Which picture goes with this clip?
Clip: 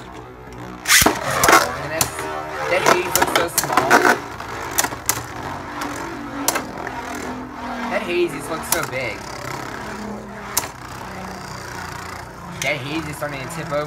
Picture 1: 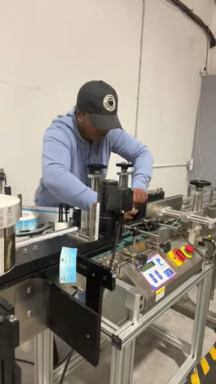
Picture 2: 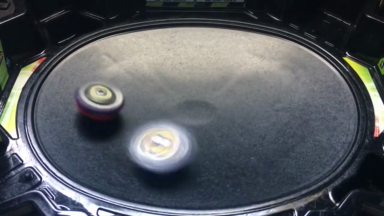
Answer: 2